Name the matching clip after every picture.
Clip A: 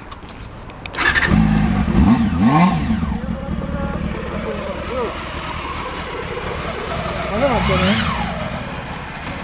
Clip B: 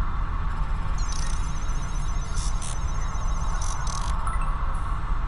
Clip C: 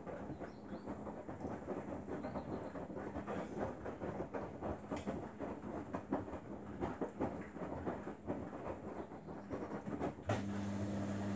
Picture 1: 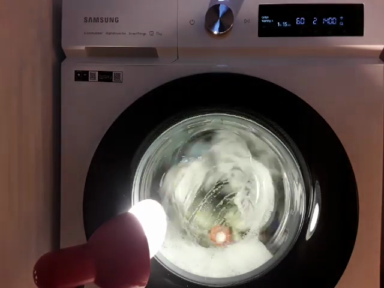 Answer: C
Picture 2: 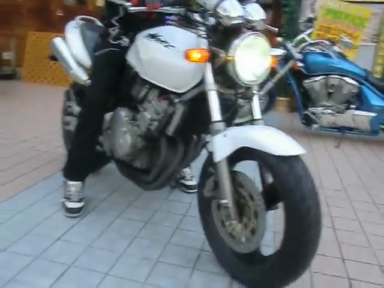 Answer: A